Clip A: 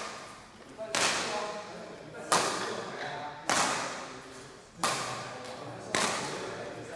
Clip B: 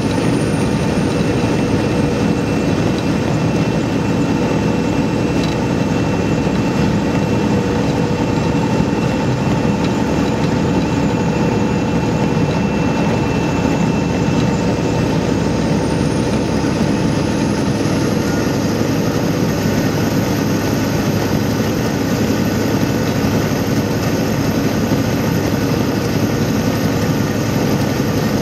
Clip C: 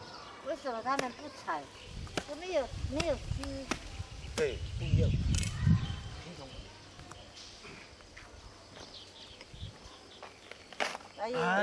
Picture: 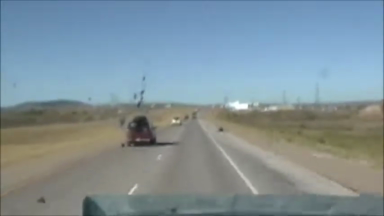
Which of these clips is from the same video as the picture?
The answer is B